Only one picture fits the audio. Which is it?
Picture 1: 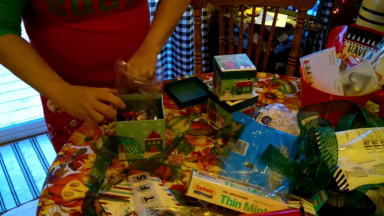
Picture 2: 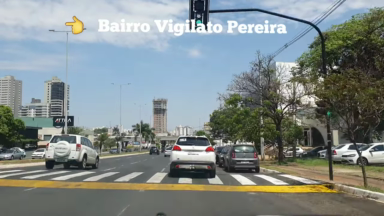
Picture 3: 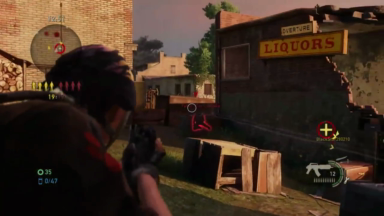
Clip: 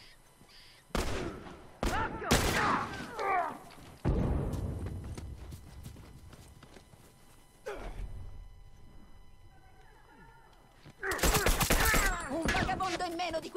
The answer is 3